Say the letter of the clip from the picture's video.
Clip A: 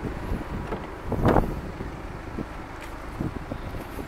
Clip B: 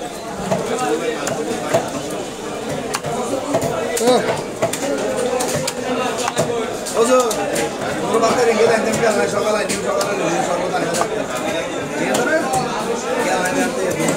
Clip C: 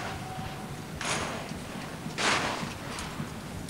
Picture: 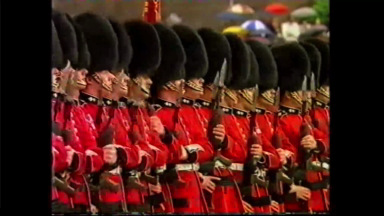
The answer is C